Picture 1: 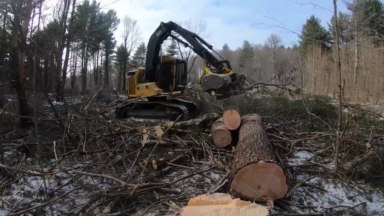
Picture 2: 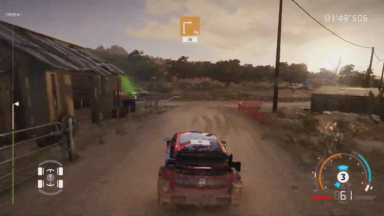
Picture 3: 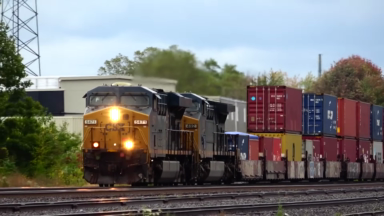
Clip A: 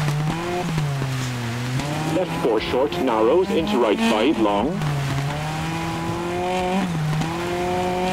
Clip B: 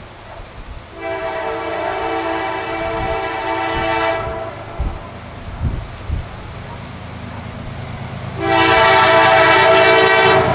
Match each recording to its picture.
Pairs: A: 2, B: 3